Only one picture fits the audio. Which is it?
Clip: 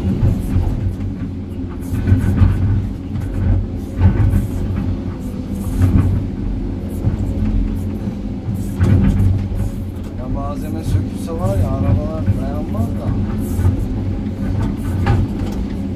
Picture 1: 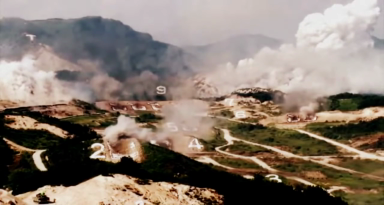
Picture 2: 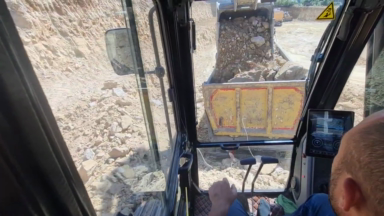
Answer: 2